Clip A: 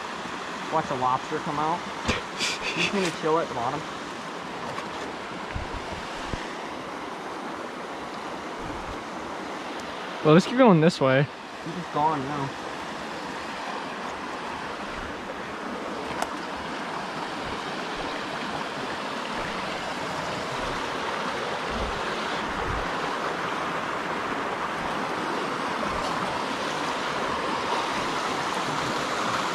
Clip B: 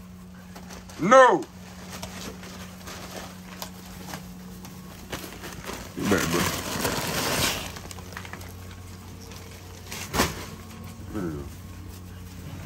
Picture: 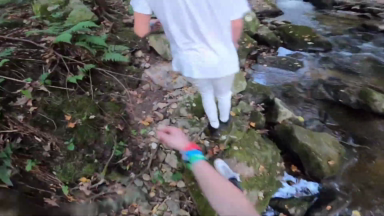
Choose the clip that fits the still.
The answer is A